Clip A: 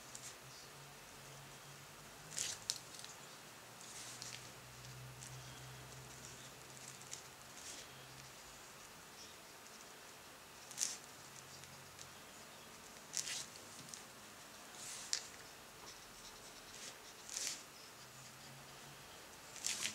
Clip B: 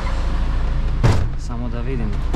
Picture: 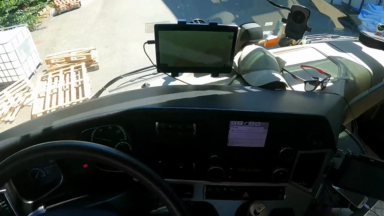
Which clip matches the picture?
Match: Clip B